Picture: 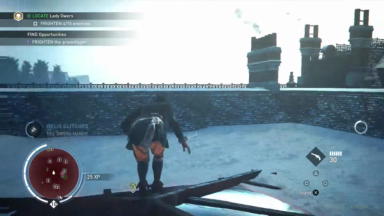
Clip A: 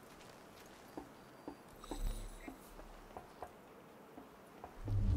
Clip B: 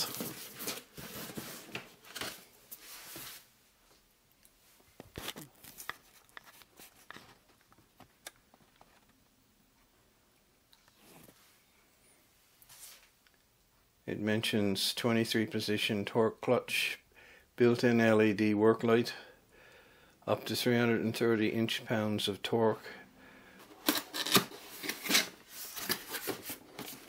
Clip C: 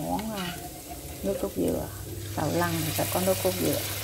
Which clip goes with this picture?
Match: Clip A